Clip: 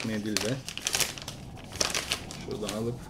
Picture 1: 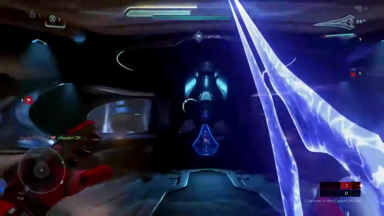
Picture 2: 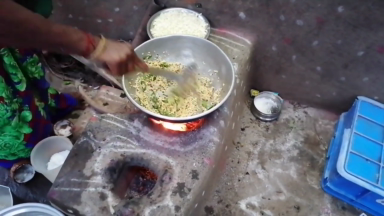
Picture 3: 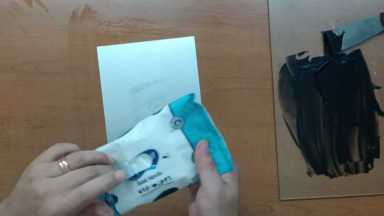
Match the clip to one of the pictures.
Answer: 3